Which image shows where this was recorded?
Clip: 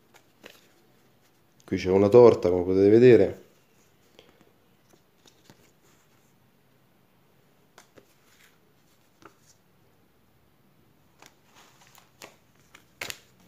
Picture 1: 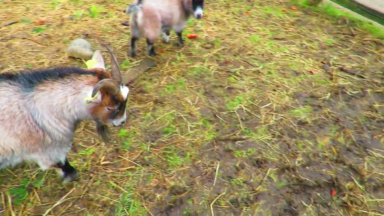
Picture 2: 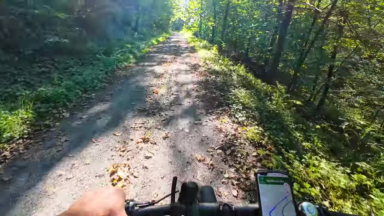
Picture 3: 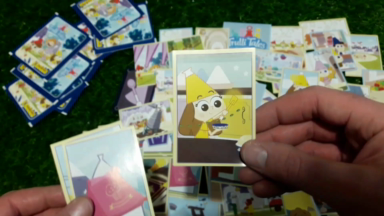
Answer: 3